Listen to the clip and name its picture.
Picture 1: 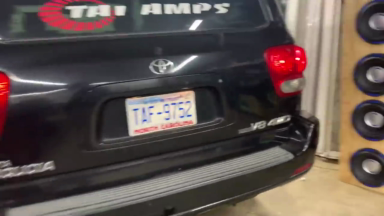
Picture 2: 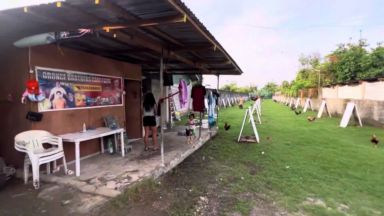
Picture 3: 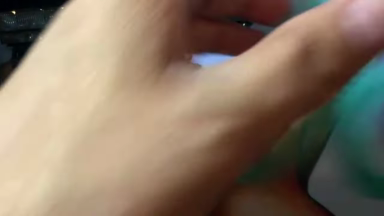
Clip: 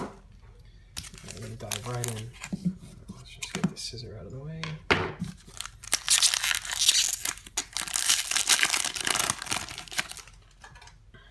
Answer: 3